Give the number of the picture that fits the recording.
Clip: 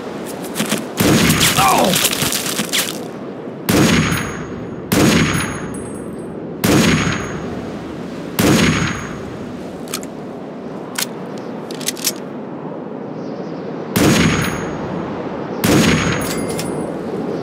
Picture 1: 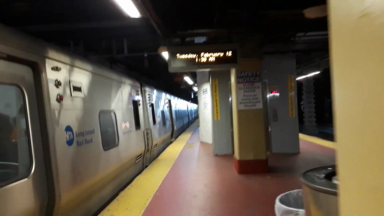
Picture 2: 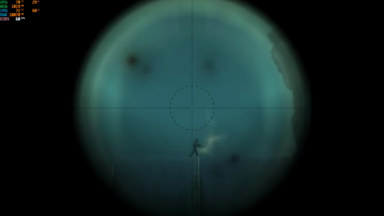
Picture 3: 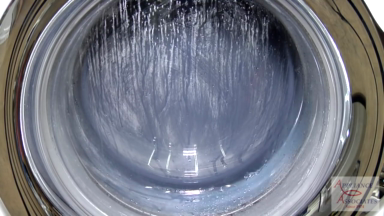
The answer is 2